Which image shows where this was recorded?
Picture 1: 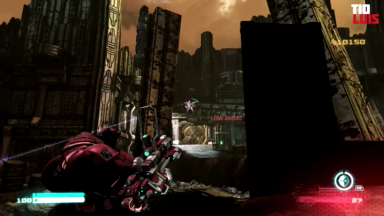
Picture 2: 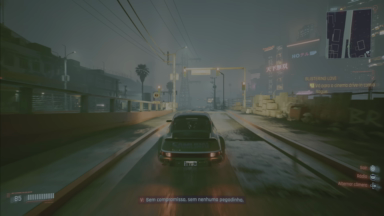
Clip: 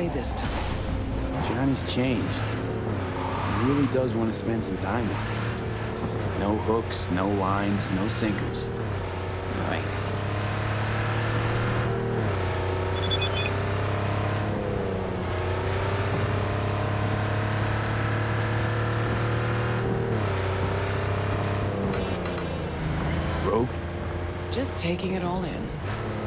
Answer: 2